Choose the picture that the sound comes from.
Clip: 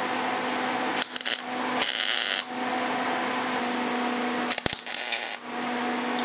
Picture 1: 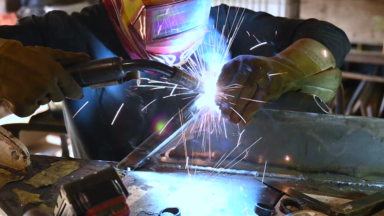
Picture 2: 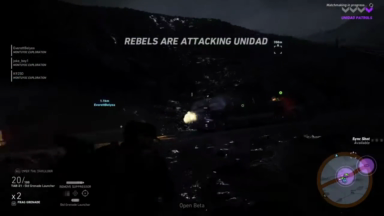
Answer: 1